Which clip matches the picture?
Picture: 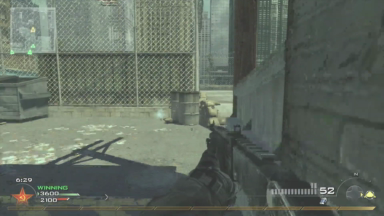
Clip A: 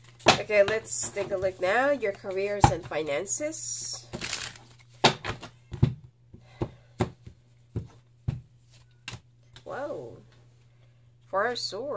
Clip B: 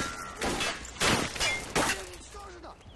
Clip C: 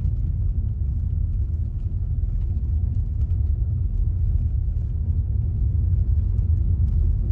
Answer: B